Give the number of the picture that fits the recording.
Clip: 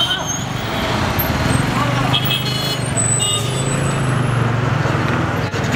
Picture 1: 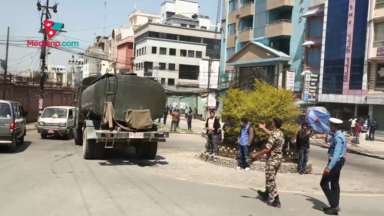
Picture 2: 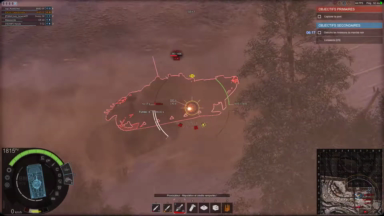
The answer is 1